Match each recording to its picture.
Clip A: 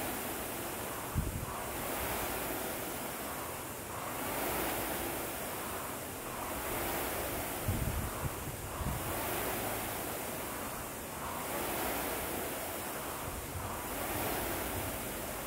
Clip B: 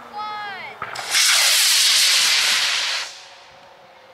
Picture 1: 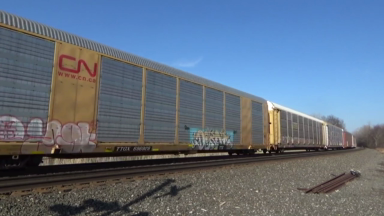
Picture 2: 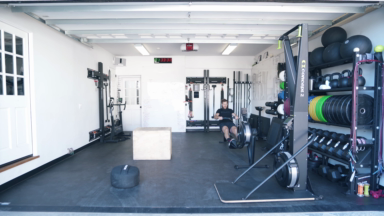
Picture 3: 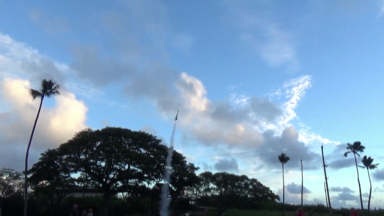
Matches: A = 2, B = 3